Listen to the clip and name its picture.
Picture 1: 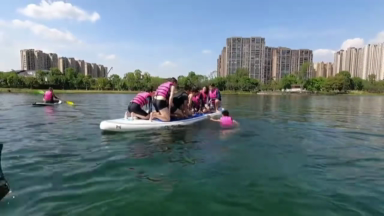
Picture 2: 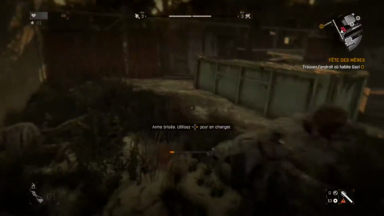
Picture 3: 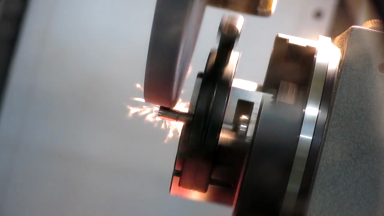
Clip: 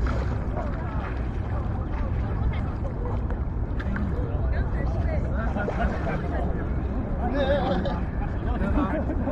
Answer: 1